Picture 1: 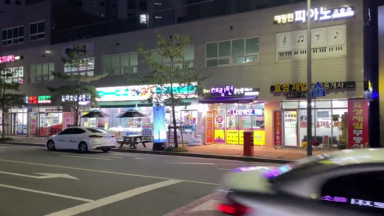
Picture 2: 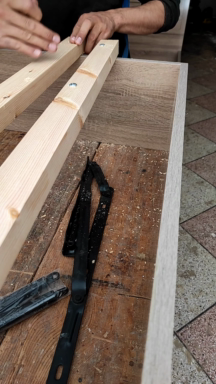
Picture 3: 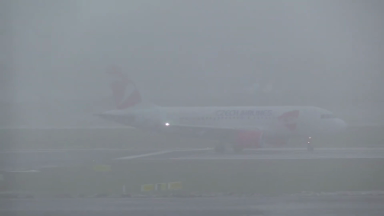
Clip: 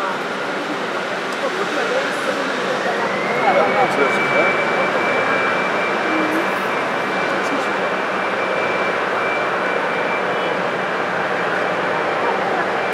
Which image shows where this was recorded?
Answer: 3